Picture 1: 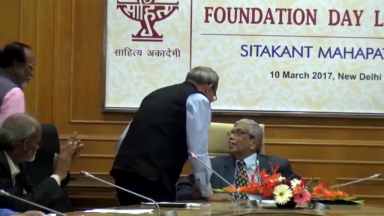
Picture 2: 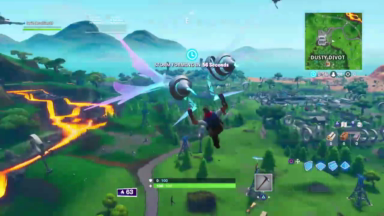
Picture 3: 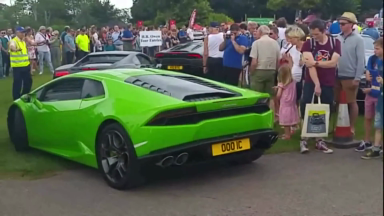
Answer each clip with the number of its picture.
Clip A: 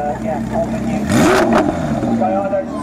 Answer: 3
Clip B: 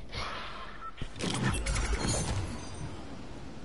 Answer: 2